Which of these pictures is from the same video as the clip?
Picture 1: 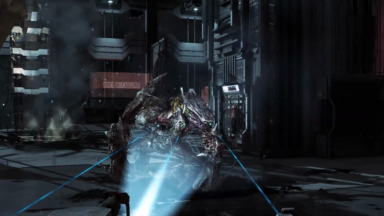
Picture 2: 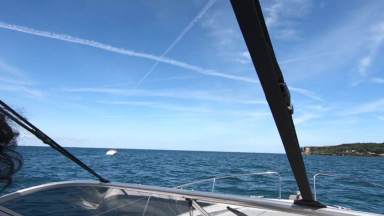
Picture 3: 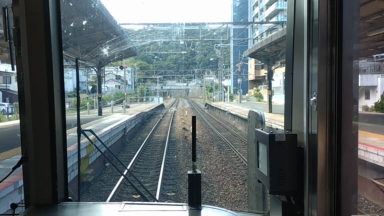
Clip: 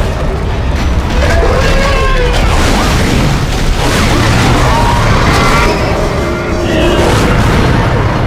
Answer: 1